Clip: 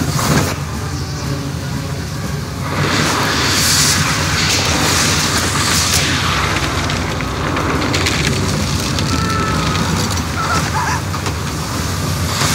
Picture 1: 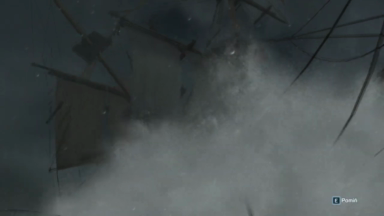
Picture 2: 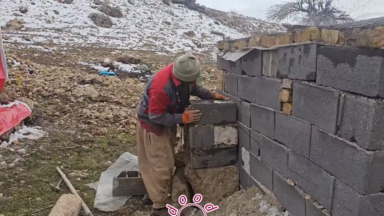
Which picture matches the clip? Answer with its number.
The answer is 1